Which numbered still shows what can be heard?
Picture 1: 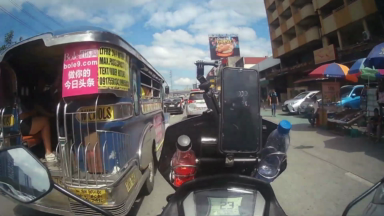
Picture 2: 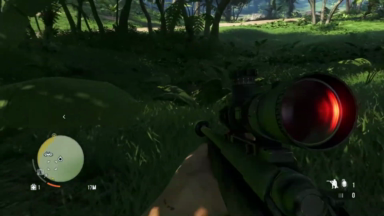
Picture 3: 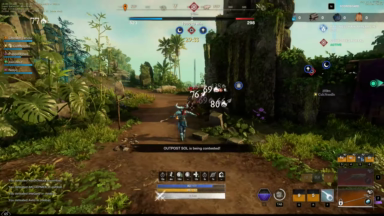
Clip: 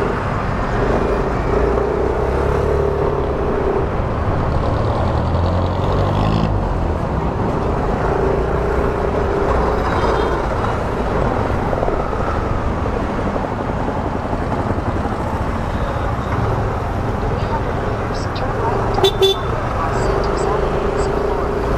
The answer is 1